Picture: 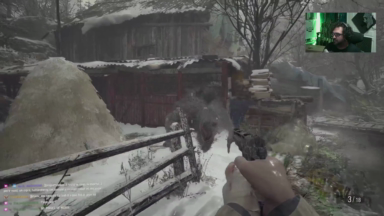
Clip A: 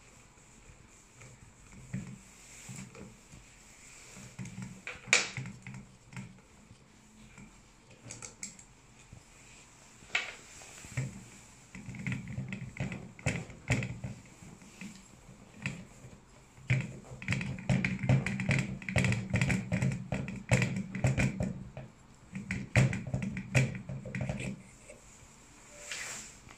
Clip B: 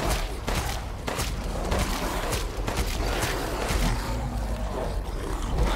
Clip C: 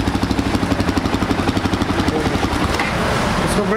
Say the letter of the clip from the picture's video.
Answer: B